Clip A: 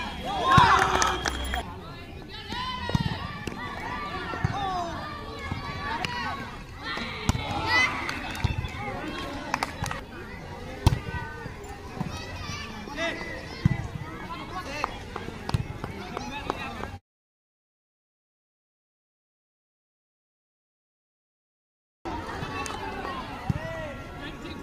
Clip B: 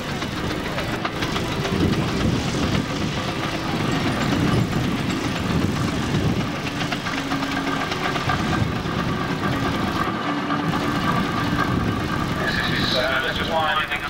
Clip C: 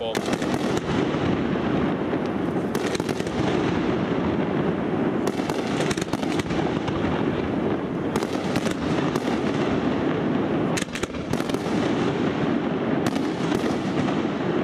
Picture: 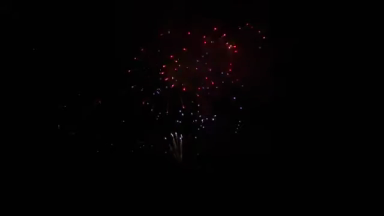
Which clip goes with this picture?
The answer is C